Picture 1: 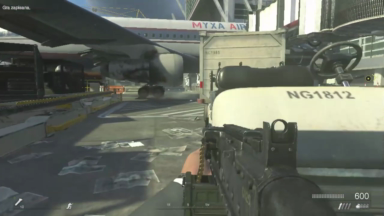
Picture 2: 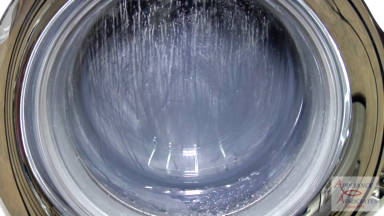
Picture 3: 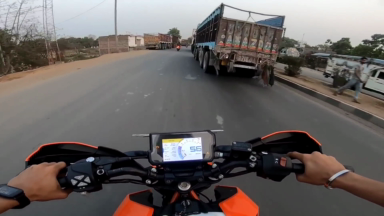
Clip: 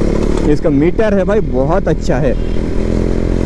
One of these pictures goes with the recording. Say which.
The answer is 3